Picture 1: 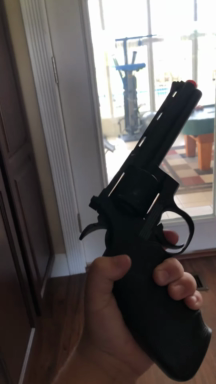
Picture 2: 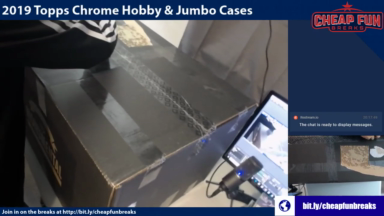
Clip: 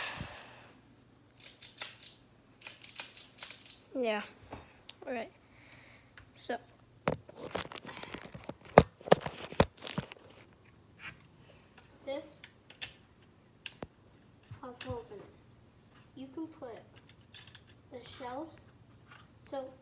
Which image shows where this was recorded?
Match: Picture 1